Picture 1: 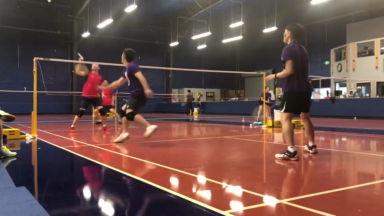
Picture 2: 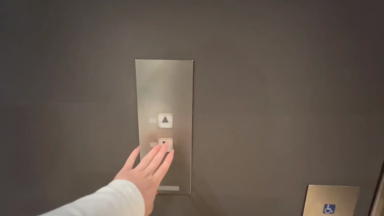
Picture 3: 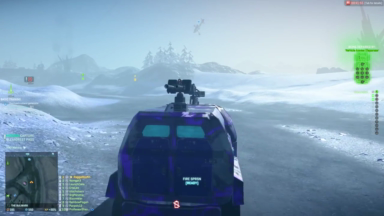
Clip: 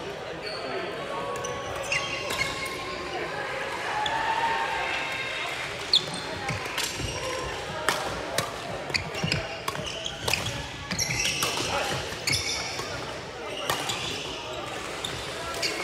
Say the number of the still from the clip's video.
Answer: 1